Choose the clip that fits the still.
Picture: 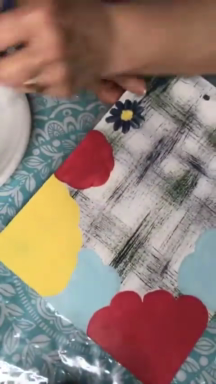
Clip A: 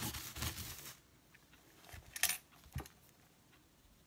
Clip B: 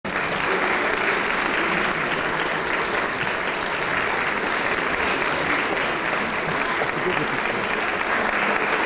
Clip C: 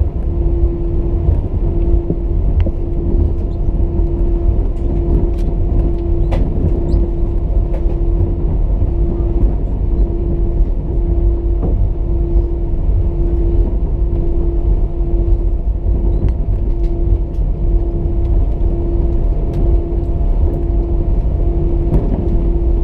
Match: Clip A